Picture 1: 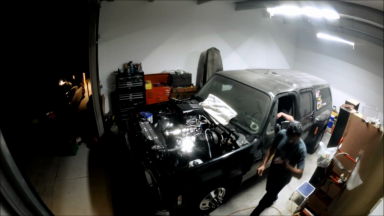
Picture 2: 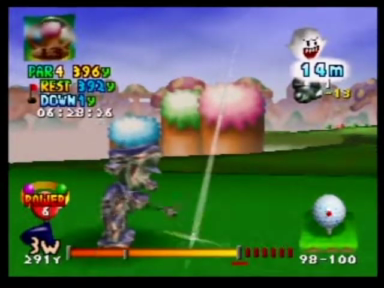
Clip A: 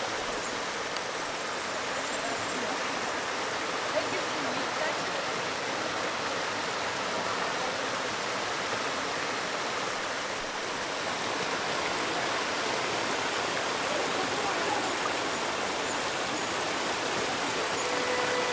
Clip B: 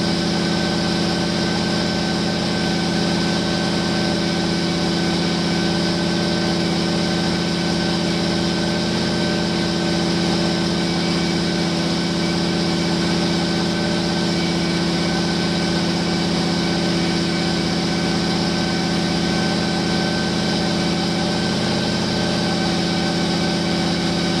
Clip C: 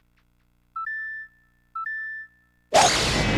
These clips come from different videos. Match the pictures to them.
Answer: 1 B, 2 C